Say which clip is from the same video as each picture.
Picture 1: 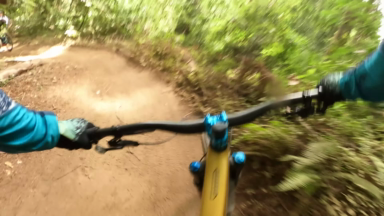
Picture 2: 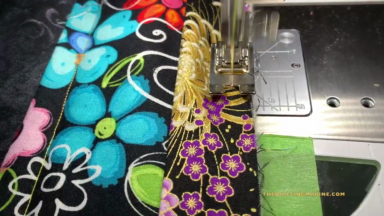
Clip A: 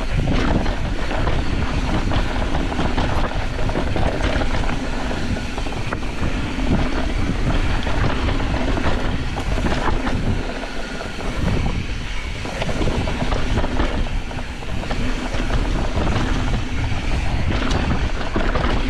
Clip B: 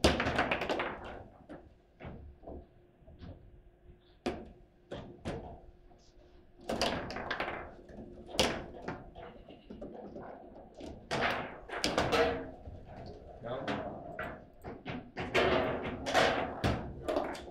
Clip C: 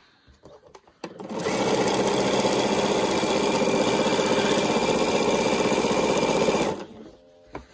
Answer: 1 A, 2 C